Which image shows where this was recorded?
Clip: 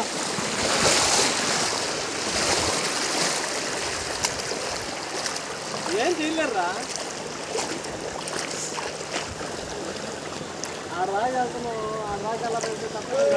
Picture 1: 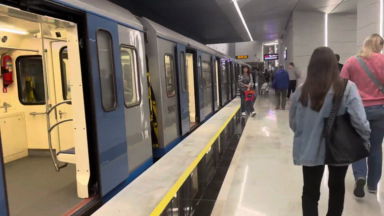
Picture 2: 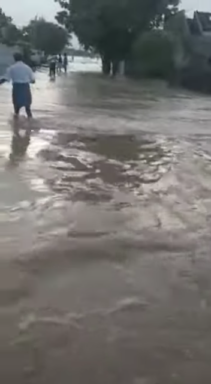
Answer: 2